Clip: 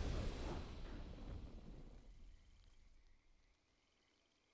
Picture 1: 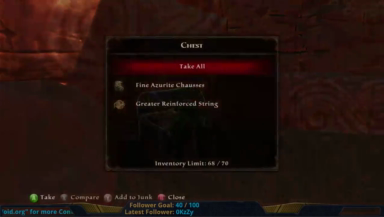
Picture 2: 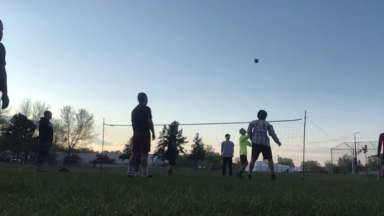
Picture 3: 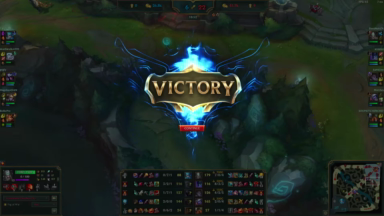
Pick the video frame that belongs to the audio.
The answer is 3